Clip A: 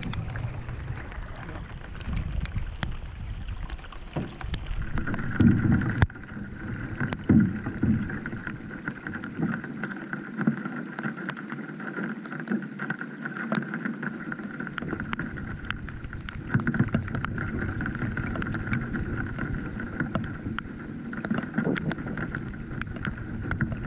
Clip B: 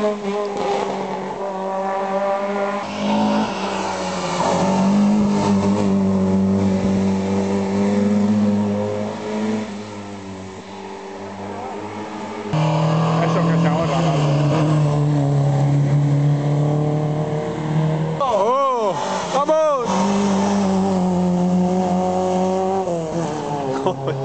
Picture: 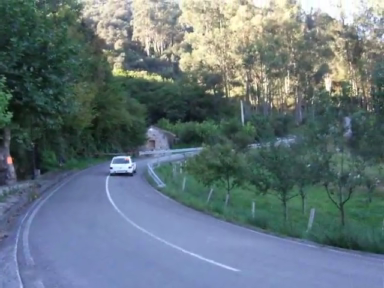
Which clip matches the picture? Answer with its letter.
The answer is B